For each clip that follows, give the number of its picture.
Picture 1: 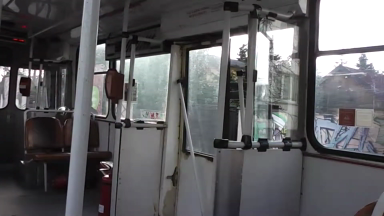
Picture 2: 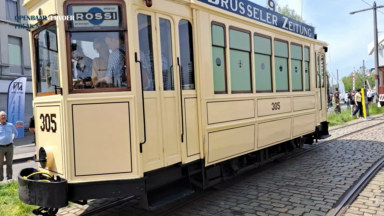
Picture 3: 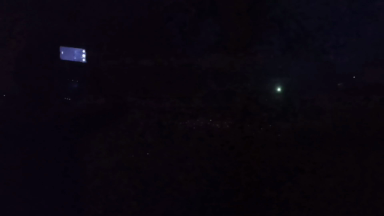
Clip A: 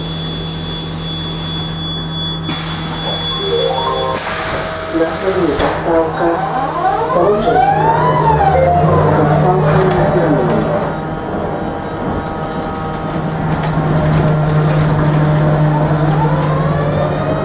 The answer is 1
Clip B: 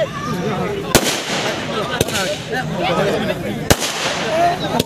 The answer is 3